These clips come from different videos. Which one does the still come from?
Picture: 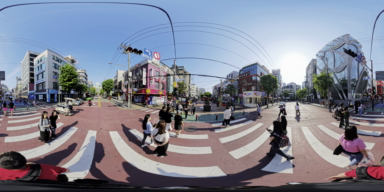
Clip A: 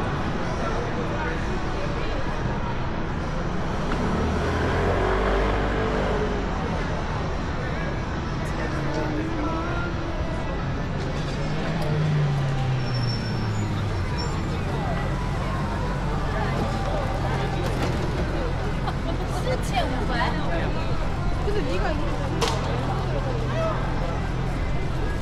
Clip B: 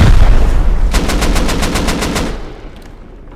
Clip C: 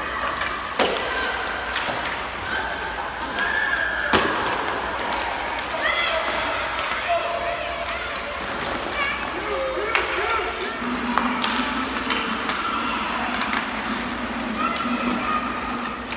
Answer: A